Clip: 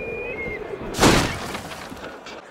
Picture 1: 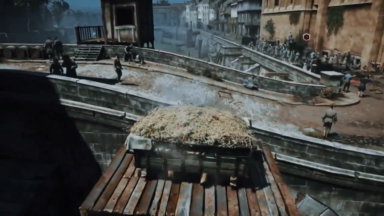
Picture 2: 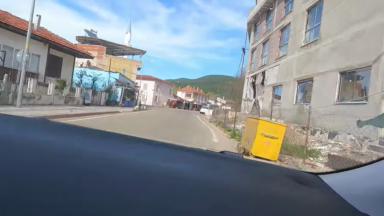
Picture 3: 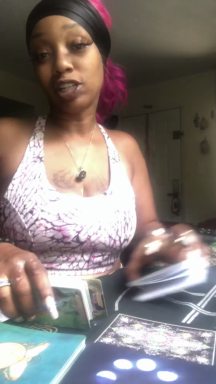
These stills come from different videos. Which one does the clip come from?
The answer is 1